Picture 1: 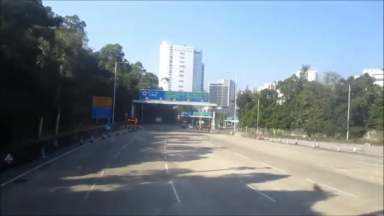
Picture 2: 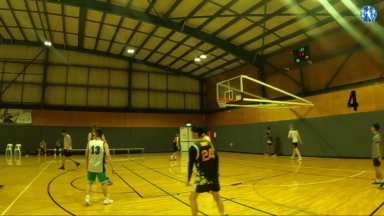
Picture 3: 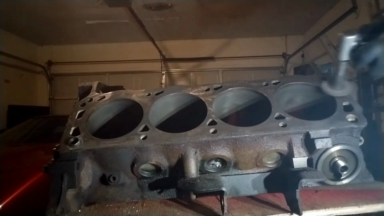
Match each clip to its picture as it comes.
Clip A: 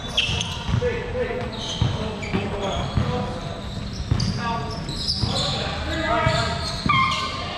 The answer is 2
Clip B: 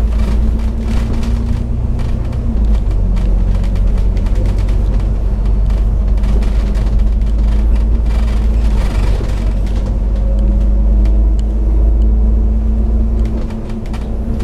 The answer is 1